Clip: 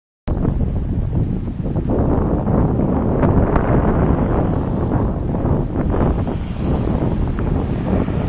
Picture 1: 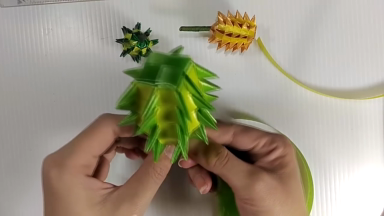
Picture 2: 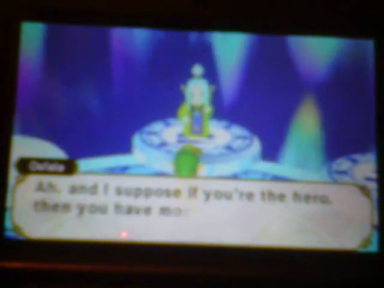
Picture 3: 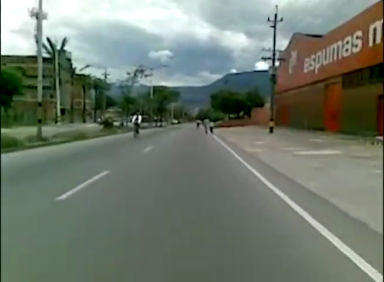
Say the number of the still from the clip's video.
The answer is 3